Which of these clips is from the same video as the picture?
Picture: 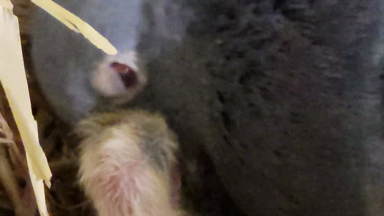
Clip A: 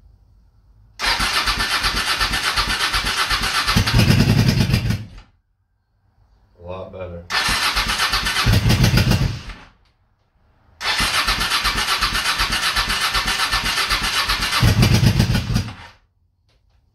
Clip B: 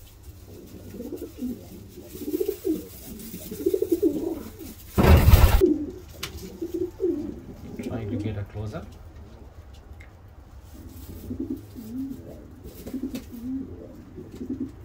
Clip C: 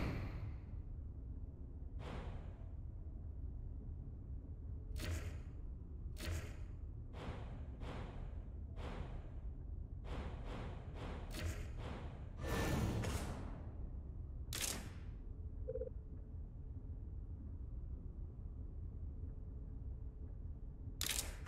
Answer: B